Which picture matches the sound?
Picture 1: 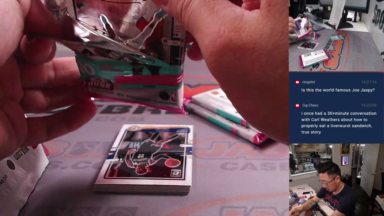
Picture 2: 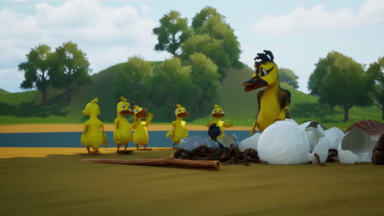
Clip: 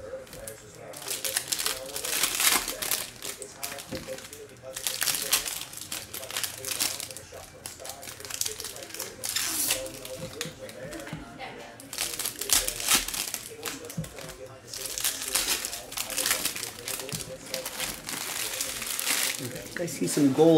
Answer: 1